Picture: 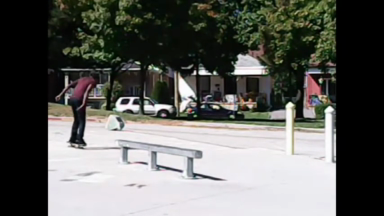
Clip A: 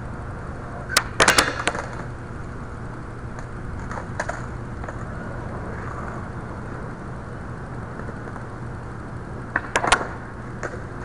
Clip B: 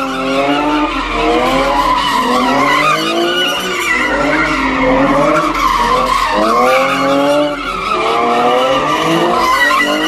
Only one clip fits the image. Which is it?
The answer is A